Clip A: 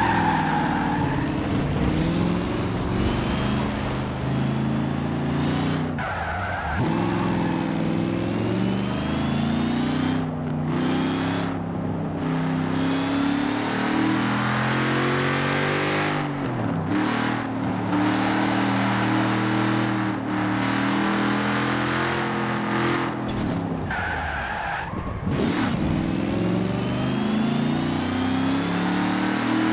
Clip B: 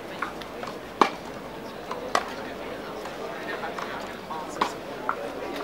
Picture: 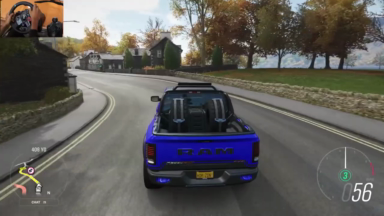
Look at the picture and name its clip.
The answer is A